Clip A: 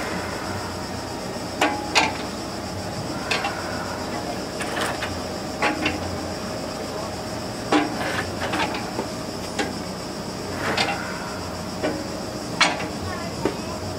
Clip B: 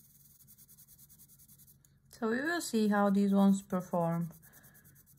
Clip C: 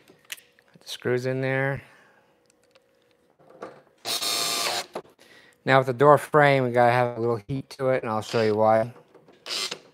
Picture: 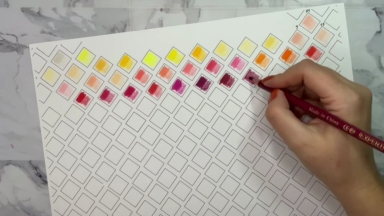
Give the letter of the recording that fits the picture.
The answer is B